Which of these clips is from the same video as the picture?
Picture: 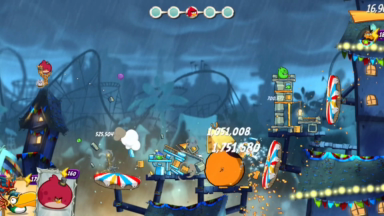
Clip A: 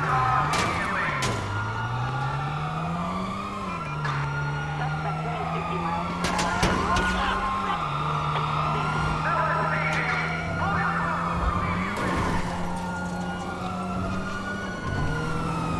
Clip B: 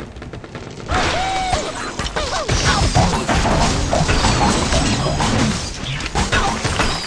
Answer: B